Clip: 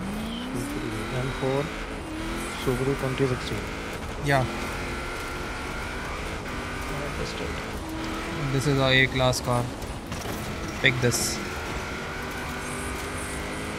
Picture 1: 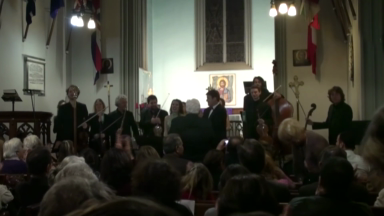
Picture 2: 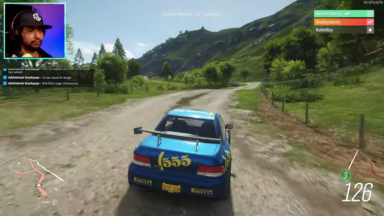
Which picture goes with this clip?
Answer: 2